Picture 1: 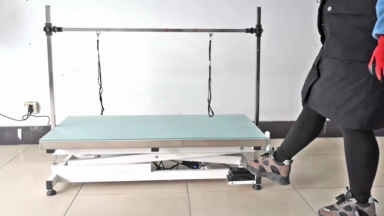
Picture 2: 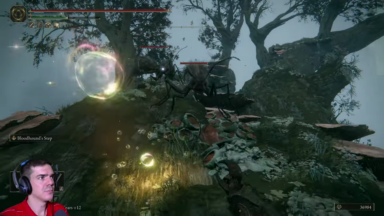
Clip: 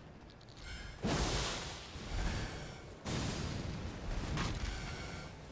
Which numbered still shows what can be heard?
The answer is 2